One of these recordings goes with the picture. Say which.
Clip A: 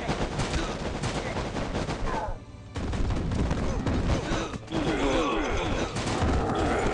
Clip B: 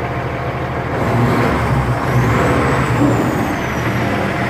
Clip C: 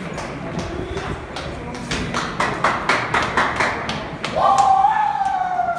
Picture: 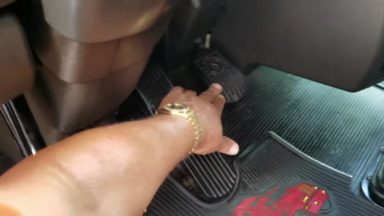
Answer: B